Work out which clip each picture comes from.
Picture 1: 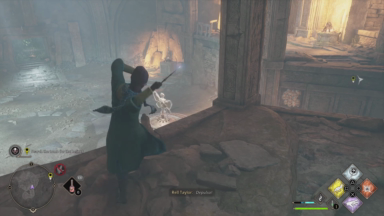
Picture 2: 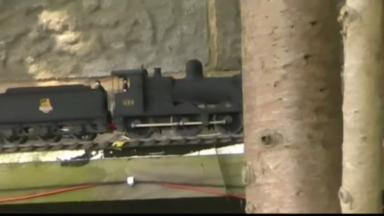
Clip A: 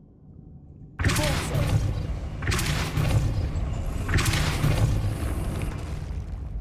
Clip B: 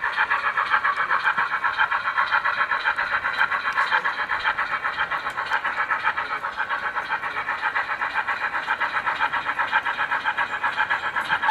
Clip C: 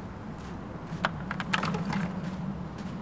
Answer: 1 A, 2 B